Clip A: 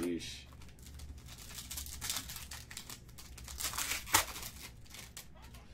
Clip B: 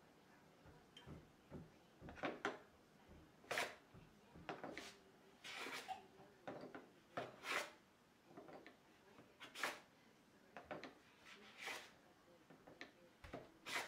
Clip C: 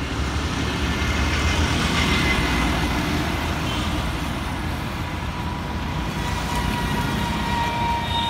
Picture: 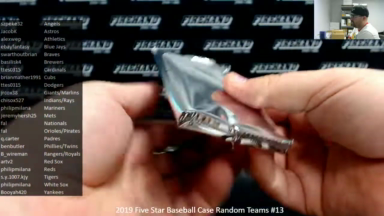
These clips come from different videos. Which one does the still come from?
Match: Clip A